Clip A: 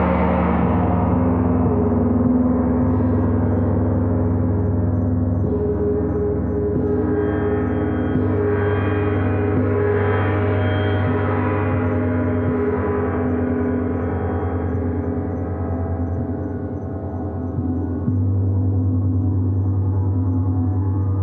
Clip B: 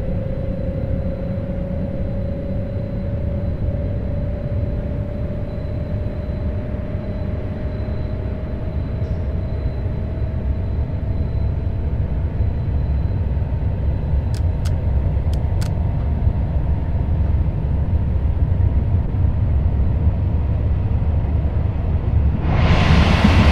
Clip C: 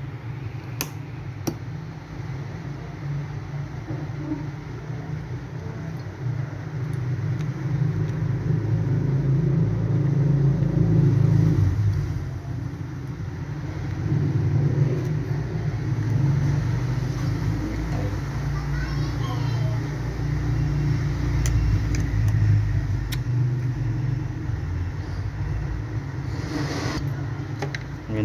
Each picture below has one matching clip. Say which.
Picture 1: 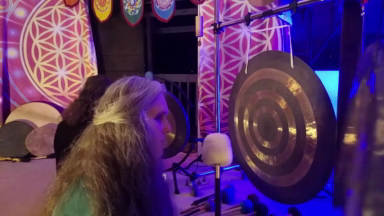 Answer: A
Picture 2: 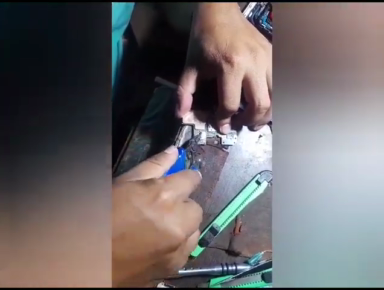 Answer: C